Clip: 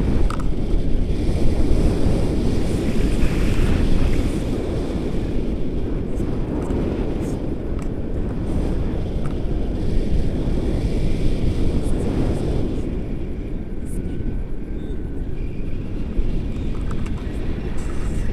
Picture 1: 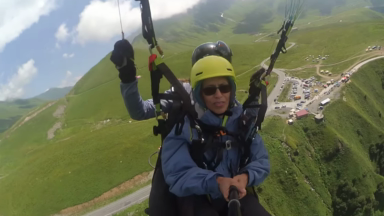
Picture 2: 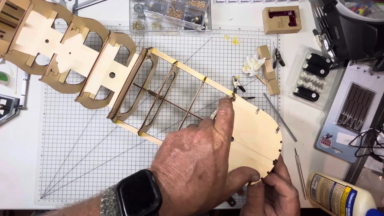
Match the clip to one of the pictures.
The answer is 1